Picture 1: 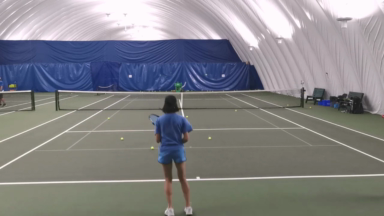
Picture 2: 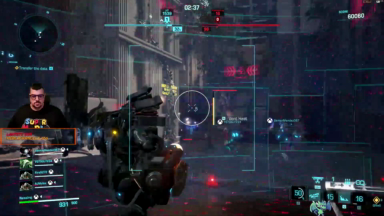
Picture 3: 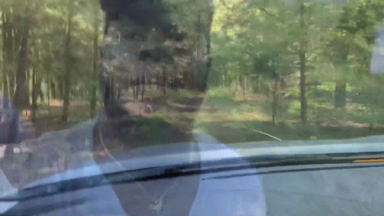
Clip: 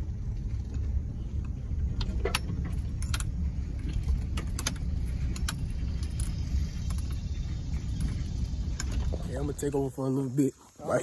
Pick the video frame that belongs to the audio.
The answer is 3